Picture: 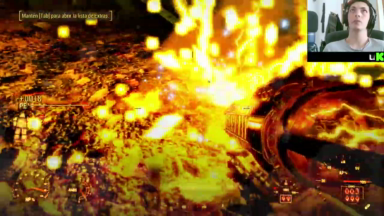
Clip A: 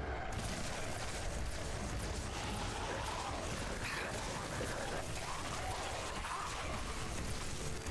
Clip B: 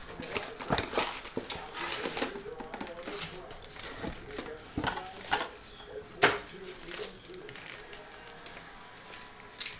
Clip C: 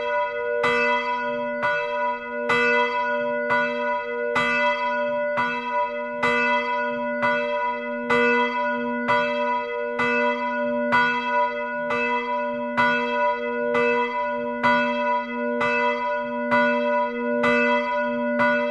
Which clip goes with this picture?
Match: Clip A